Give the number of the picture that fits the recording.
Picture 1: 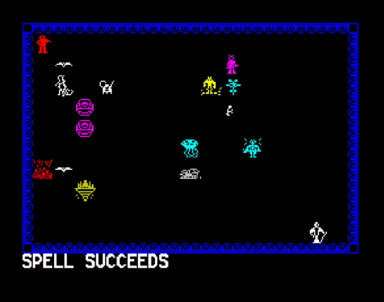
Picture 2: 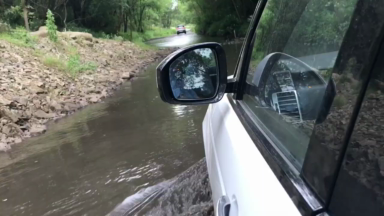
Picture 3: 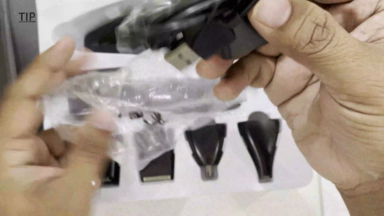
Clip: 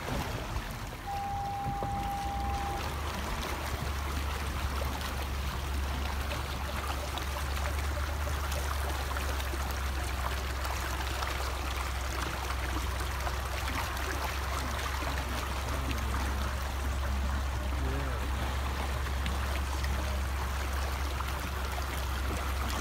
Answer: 2